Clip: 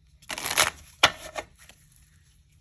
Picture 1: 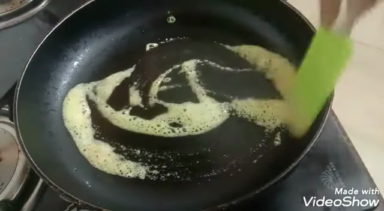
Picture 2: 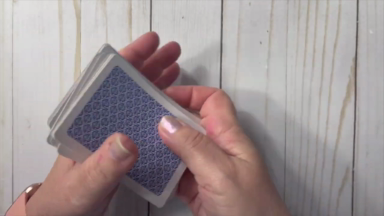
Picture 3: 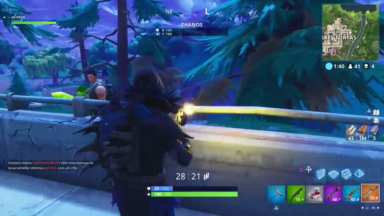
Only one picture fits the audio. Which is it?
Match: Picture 2